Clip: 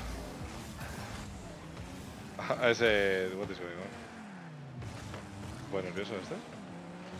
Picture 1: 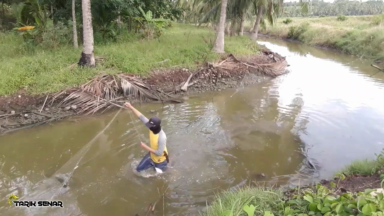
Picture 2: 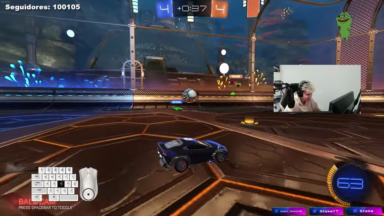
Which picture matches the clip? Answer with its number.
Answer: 2